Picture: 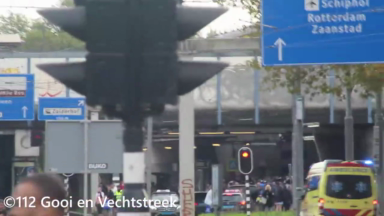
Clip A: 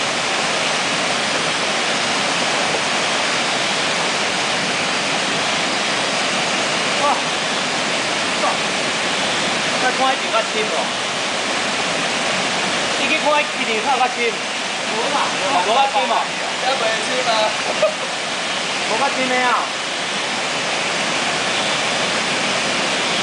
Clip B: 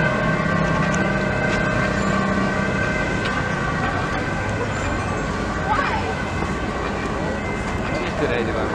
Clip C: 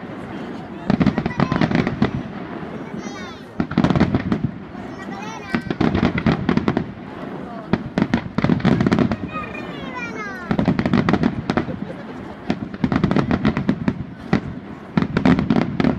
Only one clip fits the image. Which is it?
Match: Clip B